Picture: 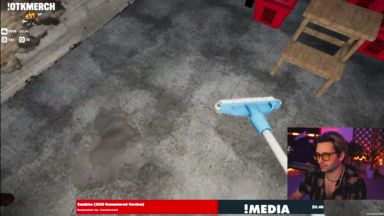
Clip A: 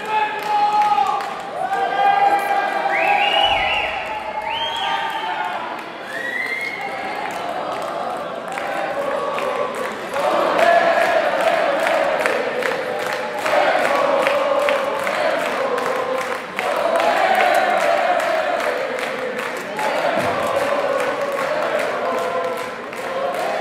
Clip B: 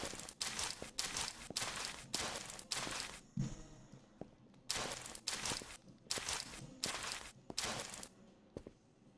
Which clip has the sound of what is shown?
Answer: B